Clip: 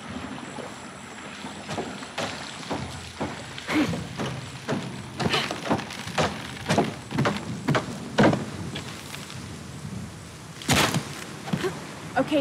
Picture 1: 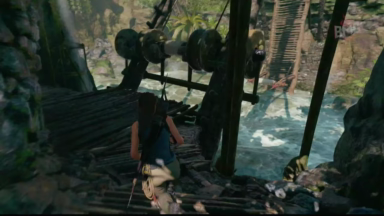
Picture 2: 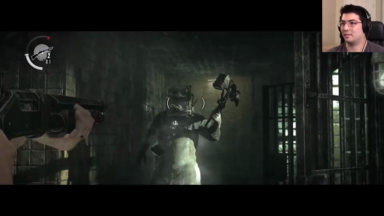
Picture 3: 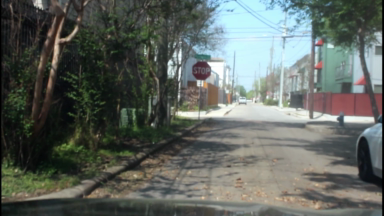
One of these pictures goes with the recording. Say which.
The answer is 1